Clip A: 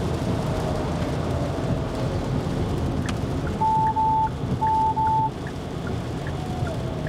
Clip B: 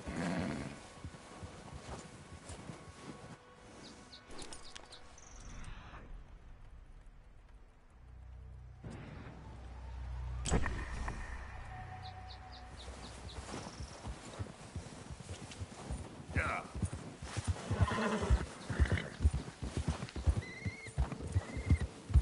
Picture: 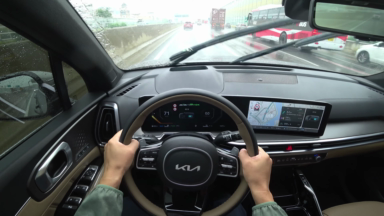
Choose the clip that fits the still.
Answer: A